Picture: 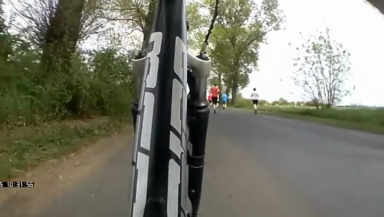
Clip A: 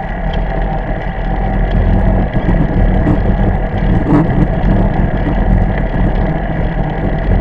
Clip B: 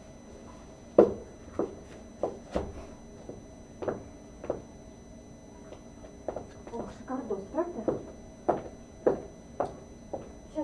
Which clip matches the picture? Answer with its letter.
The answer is A